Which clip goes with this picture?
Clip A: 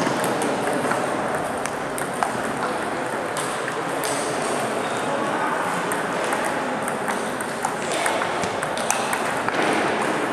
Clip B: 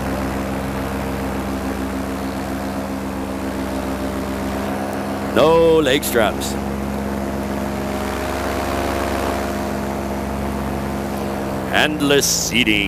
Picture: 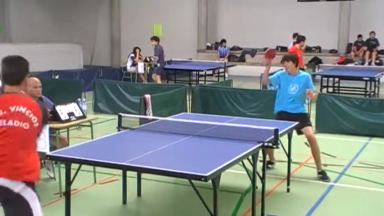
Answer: A